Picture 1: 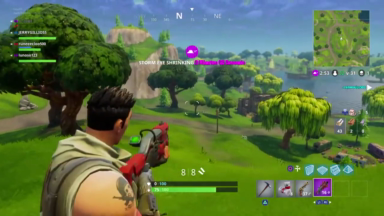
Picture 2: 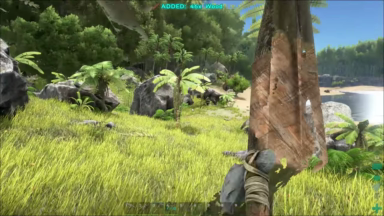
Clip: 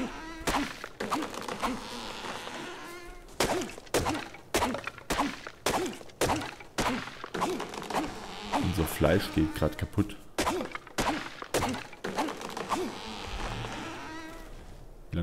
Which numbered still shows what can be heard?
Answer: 2